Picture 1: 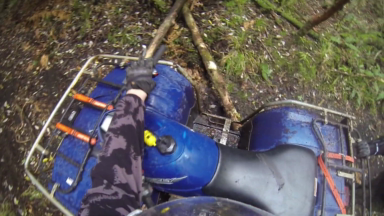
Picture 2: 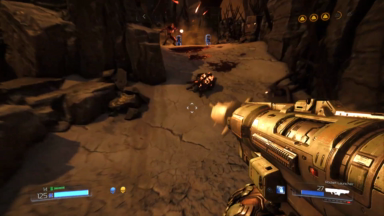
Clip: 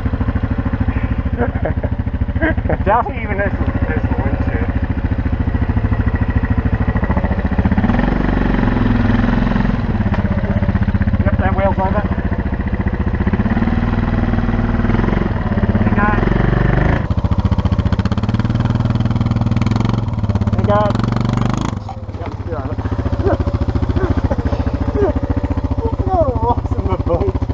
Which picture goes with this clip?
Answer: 1